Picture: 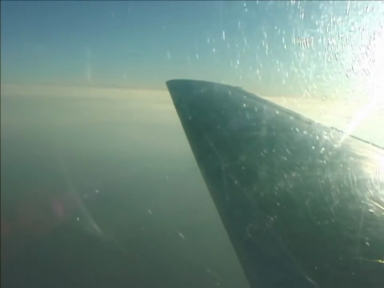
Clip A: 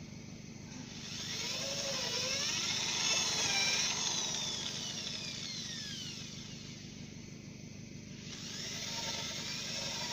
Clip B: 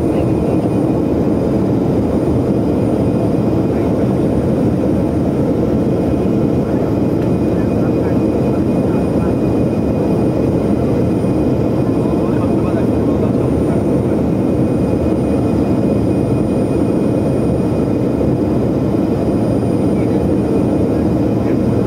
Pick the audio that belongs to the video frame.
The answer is B